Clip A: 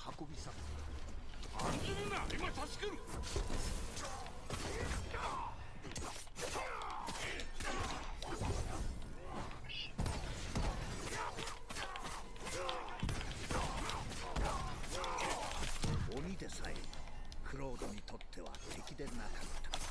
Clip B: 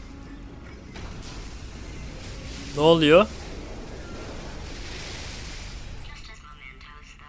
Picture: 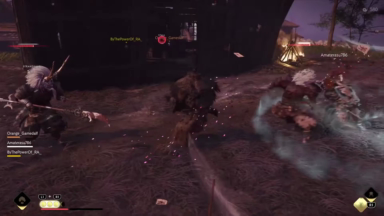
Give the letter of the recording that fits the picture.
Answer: A